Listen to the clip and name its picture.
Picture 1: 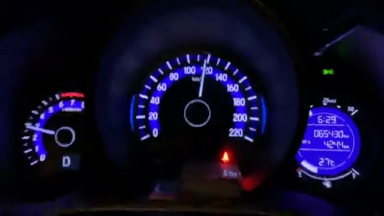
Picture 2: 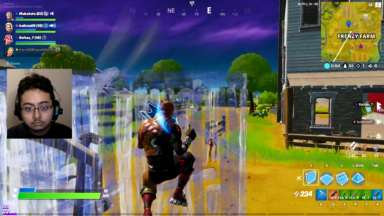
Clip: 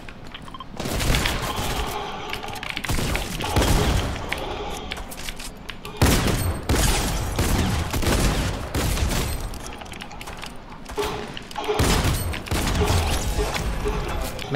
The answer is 2